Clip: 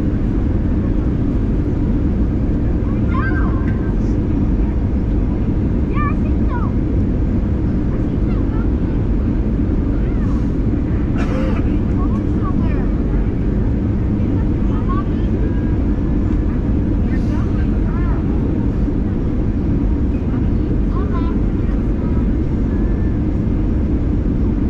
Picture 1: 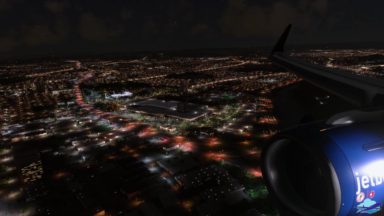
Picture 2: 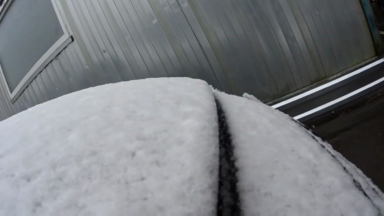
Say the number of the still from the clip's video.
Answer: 1